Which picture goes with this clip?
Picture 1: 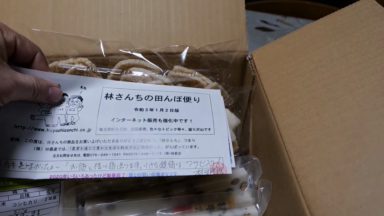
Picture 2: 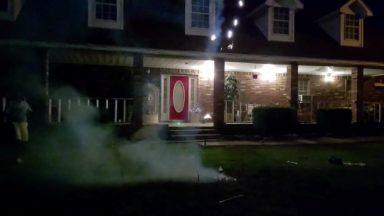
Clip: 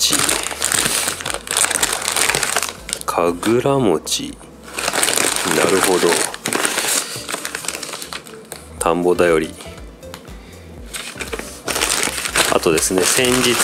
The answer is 1